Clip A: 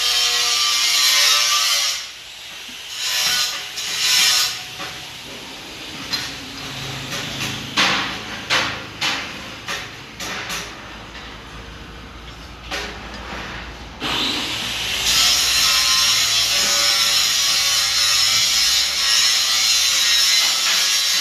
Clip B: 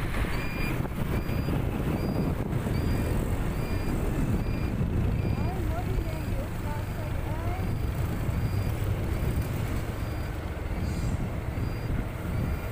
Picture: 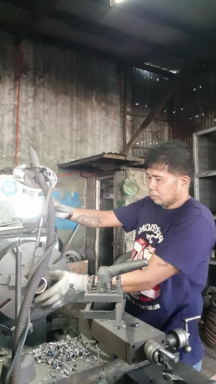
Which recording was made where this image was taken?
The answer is A